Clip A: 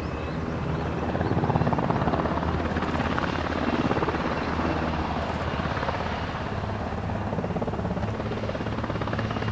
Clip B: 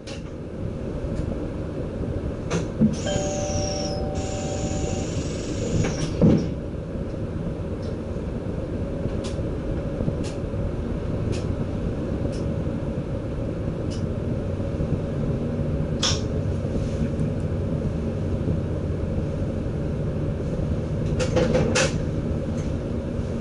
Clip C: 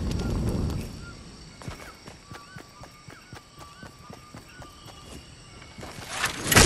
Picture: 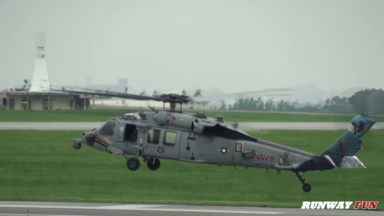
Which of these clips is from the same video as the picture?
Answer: A